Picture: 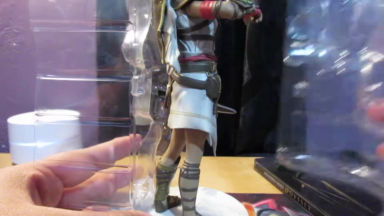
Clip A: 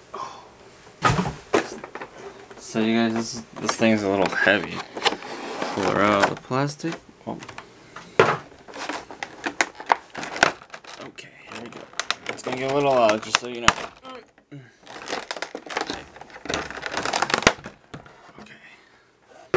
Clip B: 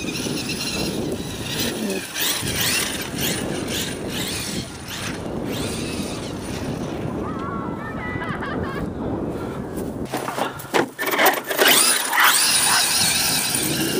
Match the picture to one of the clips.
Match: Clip A